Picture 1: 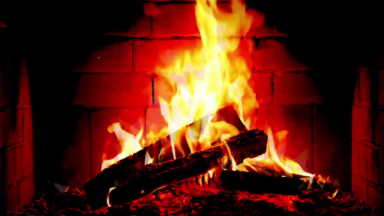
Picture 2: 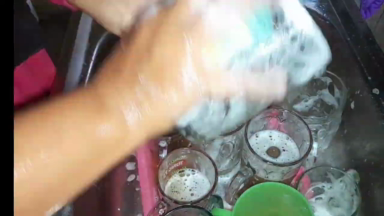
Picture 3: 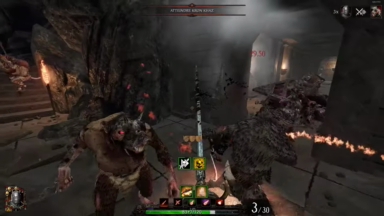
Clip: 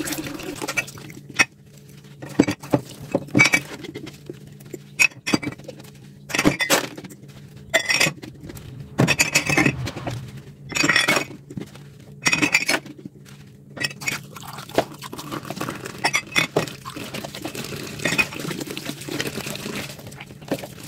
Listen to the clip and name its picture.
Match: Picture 2